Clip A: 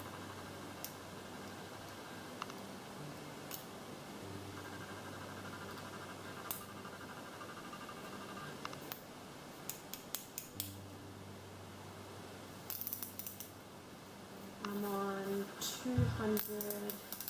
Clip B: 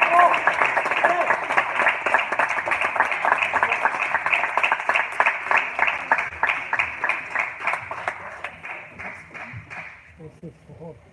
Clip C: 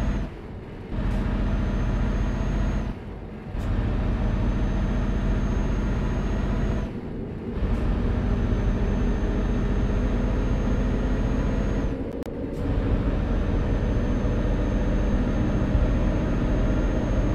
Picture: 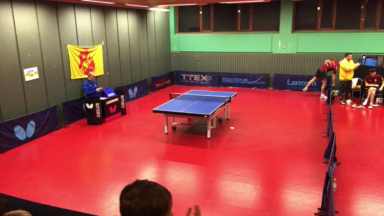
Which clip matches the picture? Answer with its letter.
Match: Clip B